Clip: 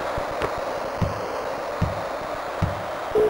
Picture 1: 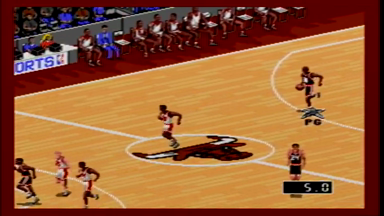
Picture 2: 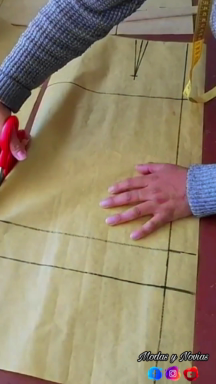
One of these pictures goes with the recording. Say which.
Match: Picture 1